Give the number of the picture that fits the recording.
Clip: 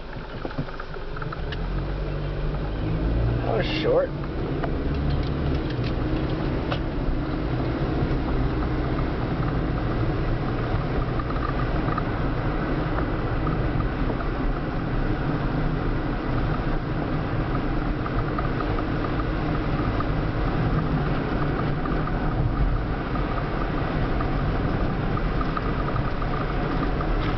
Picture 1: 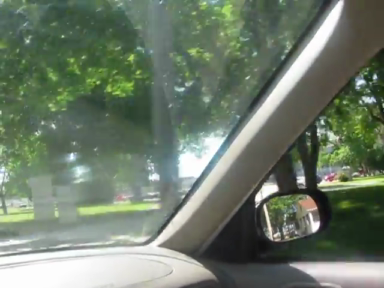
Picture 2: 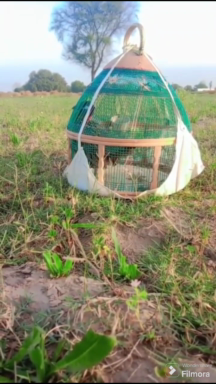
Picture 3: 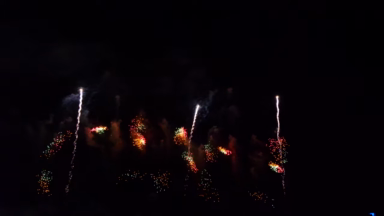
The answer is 1